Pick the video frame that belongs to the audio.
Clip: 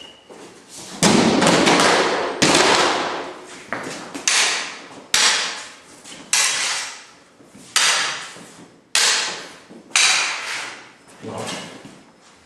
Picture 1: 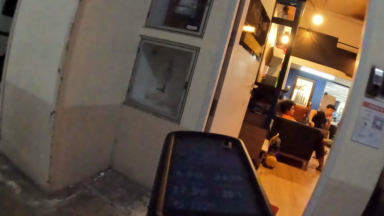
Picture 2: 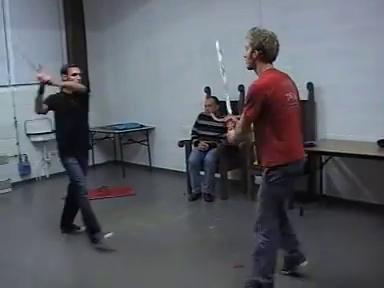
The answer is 2